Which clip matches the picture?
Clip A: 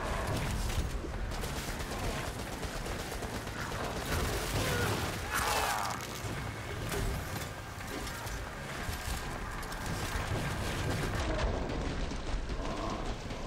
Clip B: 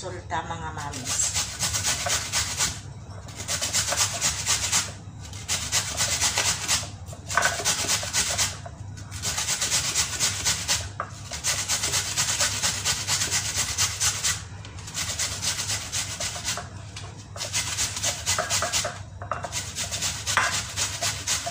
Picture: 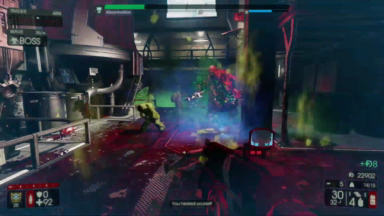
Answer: A